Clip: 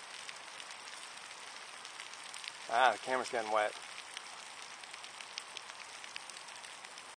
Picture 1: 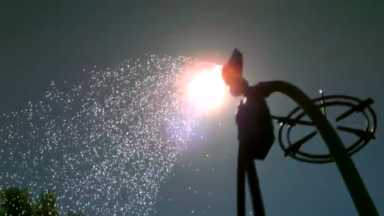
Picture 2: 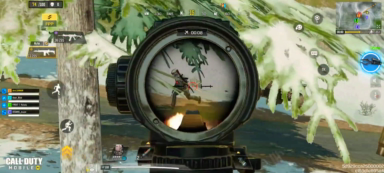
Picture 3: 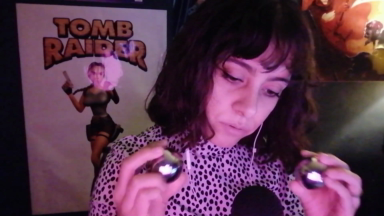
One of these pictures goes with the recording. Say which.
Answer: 1